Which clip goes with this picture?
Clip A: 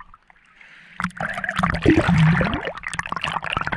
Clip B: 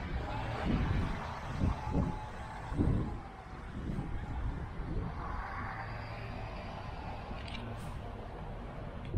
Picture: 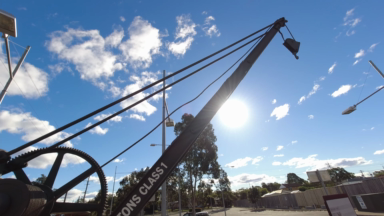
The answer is B